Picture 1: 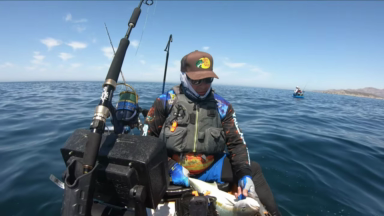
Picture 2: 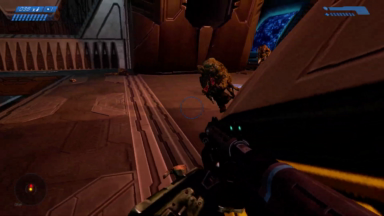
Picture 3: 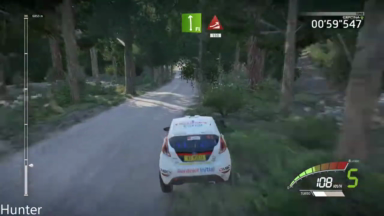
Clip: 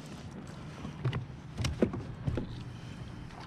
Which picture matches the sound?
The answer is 1